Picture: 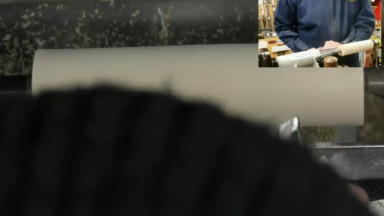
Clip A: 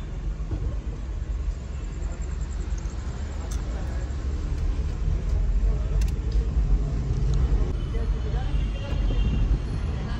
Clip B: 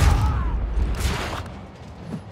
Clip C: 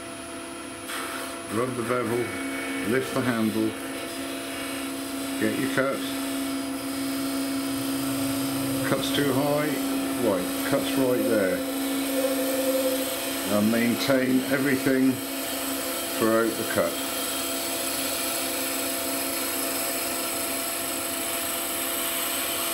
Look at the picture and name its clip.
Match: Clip C